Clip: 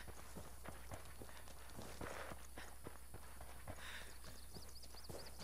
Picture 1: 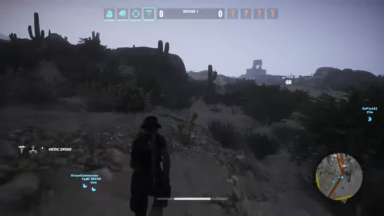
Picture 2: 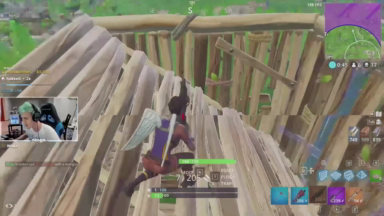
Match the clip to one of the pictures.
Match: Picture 1